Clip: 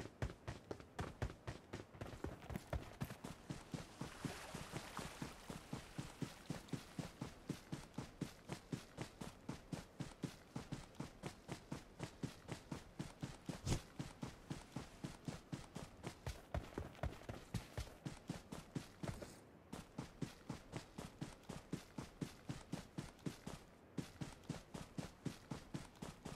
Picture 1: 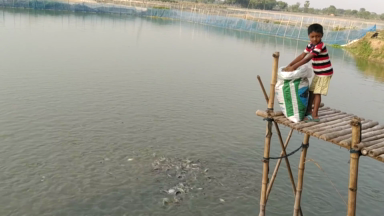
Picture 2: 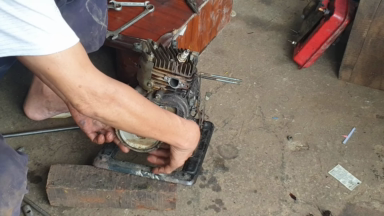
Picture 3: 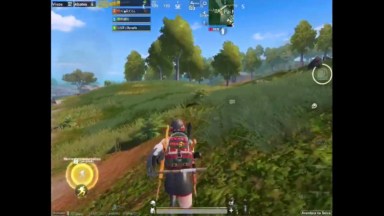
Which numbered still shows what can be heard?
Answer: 3